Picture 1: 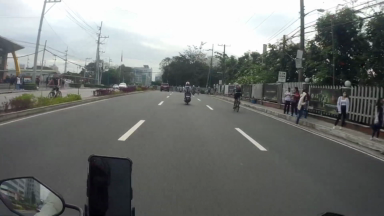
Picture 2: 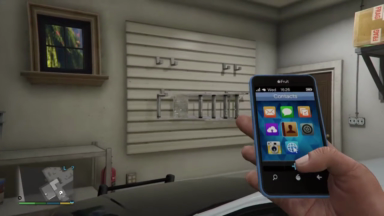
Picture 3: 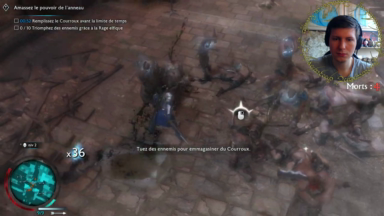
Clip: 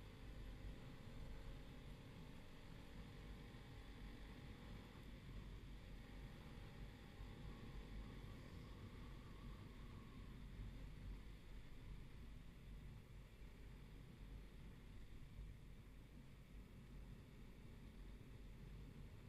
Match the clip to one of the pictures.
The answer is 1